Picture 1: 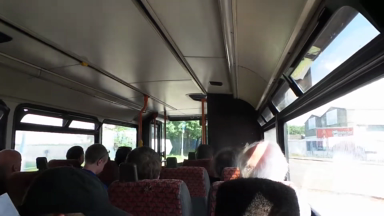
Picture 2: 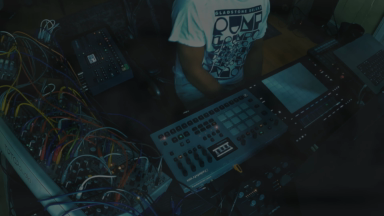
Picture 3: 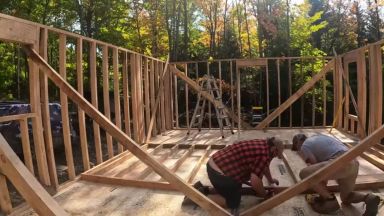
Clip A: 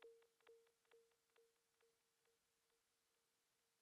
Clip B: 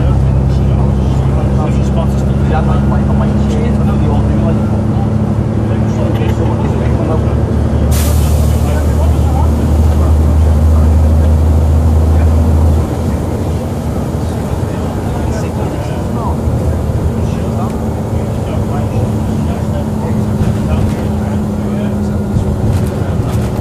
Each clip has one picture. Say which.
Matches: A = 2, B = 1